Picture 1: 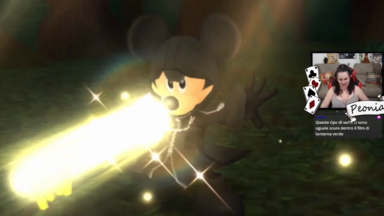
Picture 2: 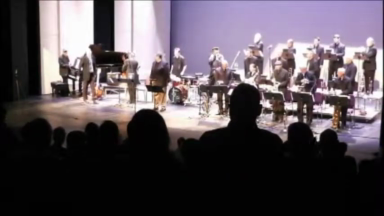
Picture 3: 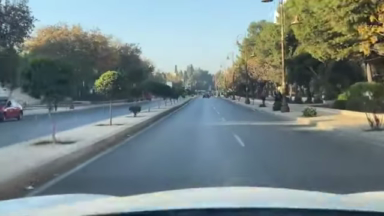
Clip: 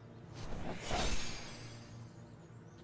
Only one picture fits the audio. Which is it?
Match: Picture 1